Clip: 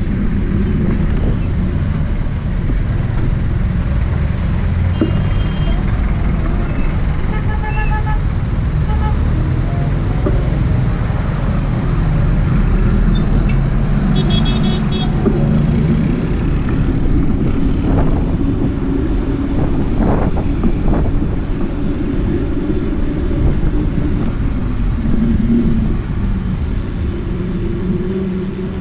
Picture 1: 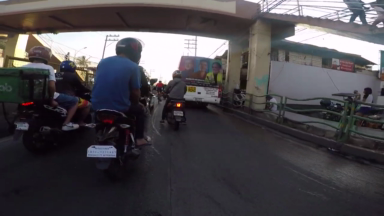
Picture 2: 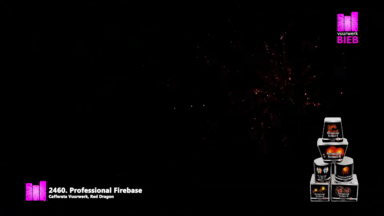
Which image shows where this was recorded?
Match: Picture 1